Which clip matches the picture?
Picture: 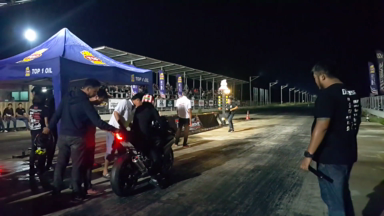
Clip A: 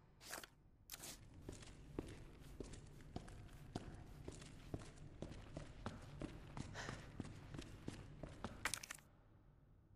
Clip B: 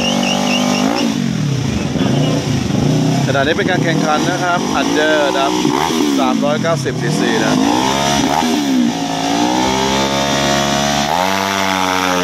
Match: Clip B